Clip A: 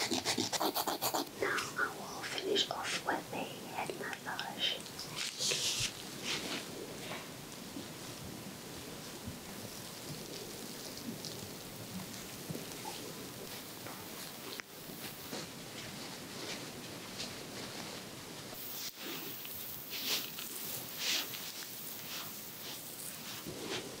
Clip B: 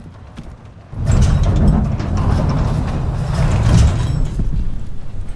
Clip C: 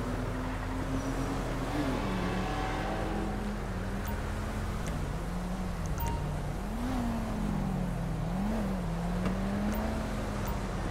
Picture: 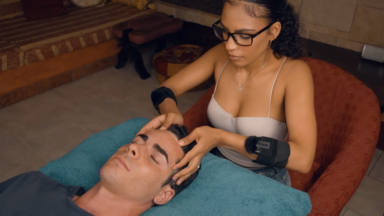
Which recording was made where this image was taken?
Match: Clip A